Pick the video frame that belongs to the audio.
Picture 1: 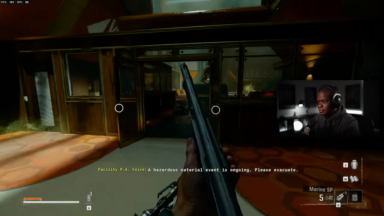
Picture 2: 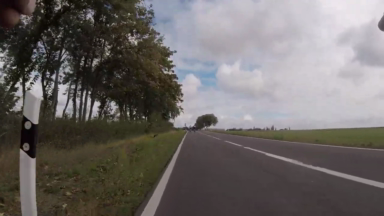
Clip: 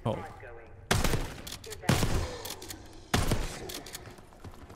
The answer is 1